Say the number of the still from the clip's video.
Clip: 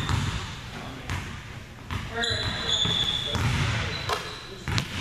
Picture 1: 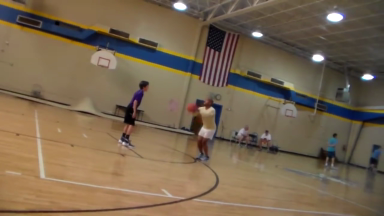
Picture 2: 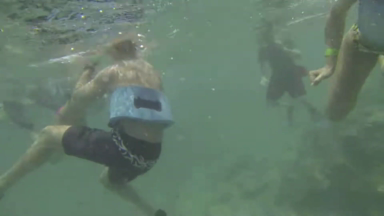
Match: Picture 1